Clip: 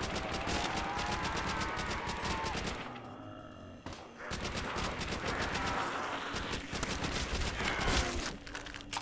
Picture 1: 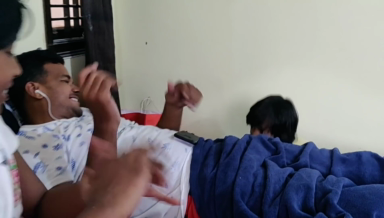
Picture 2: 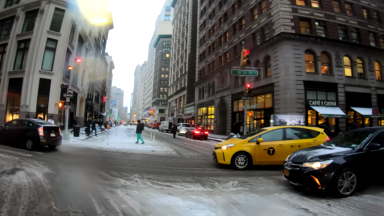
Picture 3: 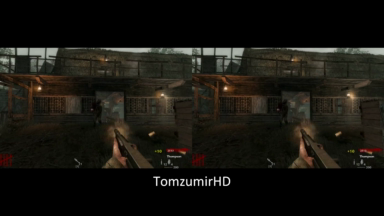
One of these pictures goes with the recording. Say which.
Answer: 3